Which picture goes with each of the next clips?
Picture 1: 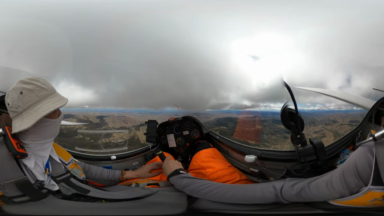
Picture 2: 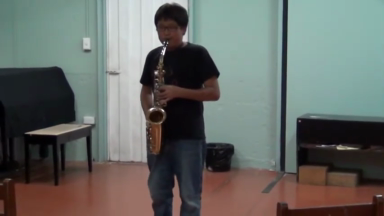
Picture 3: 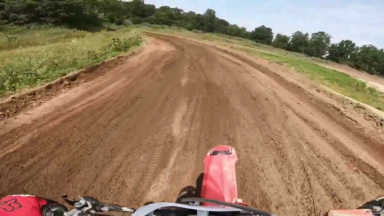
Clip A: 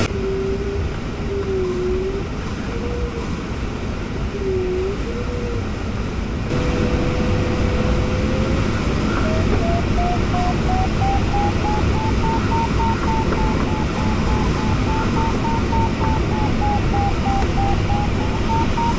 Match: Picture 1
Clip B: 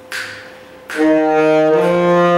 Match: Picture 2